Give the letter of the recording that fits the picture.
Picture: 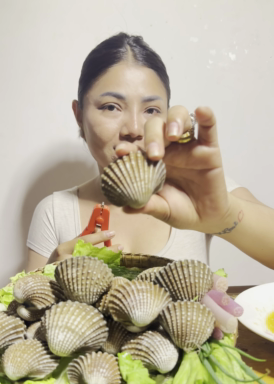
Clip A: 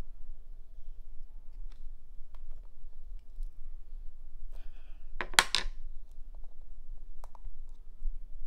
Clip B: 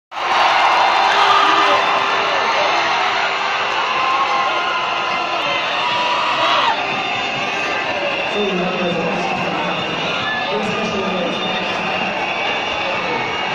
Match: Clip A